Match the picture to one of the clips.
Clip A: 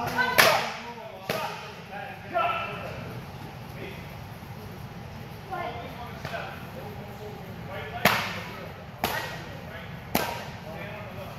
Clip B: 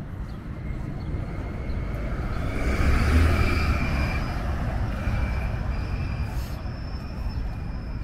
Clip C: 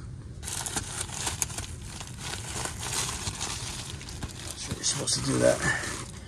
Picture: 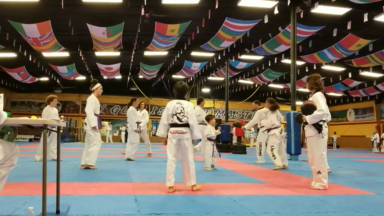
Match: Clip A